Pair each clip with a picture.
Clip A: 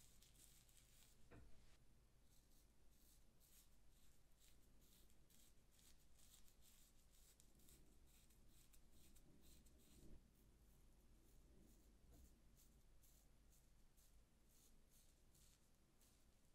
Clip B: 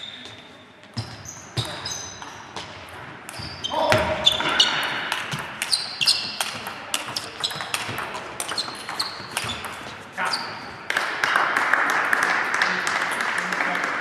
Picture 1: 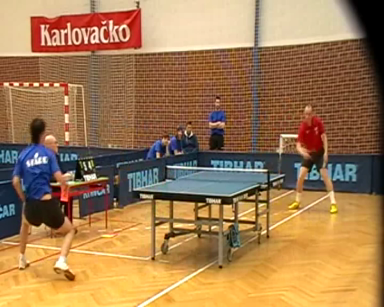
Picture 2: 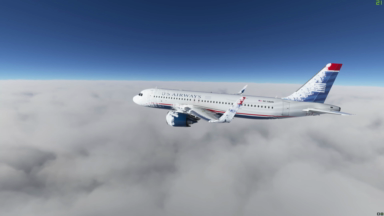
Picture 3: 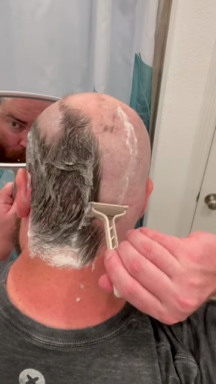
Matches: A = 3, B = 1